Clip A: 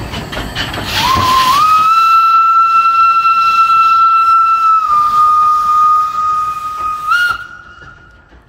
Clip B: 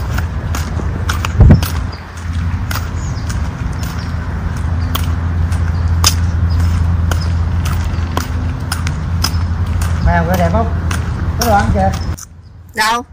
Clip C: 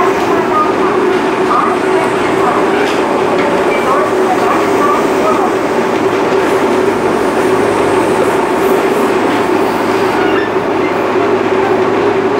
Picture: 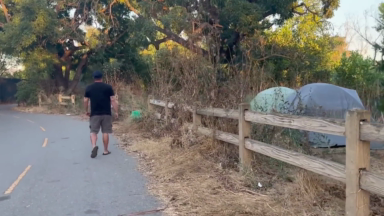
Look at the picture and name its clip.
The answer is B